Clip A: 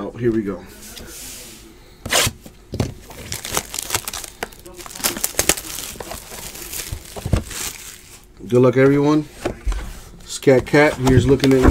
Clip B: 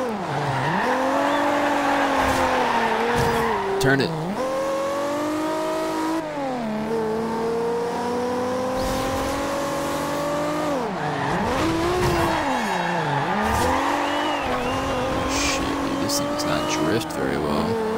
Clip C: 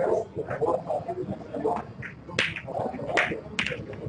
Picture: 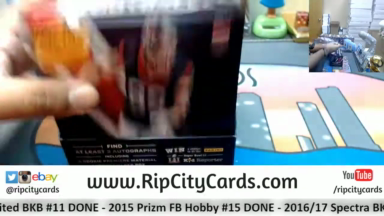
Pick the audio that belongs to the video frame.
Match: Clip A